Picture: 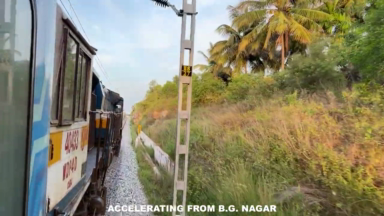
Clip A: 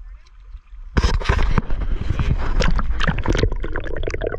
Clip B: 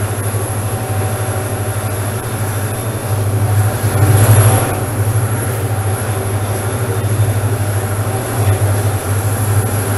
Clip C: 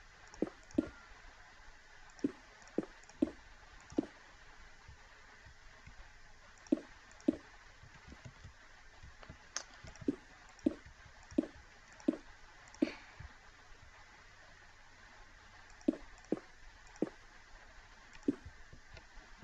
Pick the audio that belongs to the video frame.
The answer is B